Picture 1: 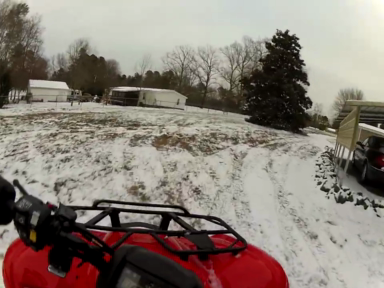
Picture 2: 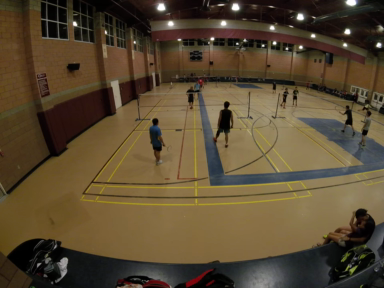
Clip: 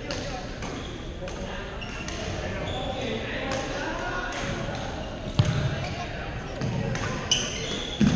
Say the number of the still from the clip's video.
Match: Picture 2